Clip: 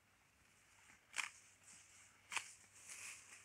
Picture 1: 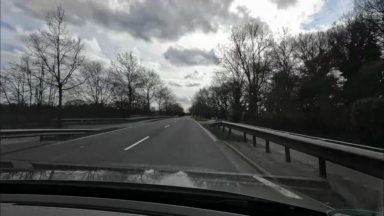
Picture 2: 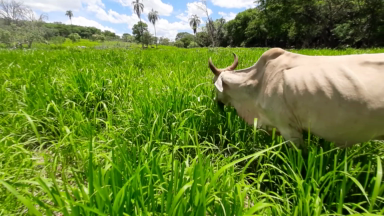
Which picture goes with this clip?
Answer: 2